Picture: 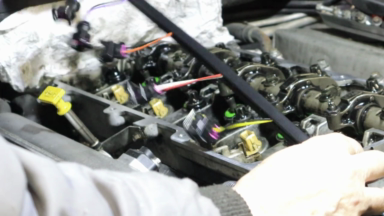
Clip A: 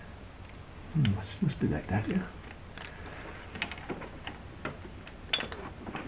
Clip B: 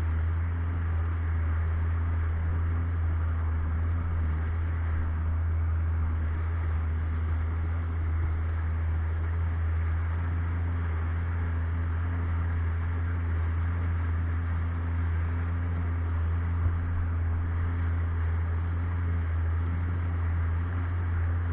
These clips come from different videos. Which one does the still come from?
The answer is A